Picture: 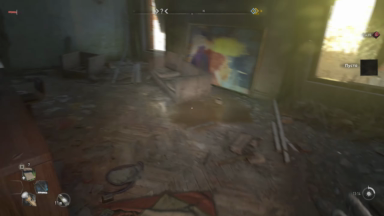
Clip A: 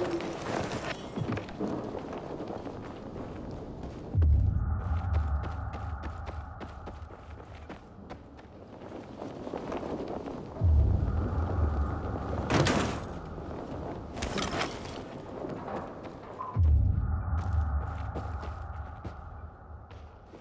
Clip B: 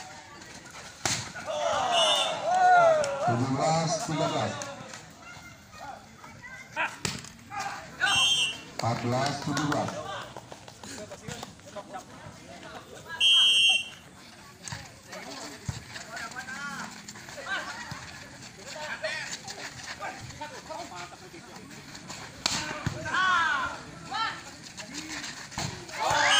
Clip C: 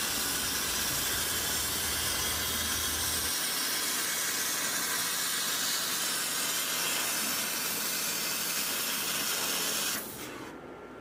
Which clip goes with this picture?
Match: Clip A